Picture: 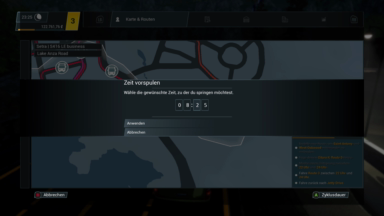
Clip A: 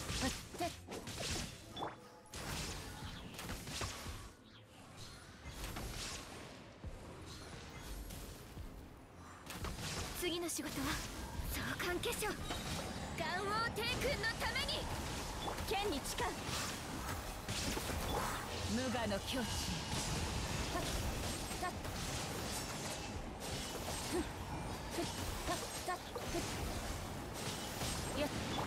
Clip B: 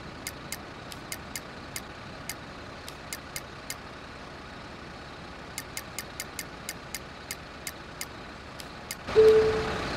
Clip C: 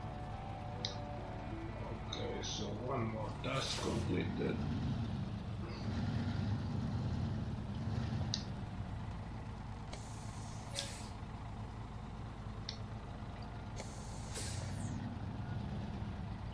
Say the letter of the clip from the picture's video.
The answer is B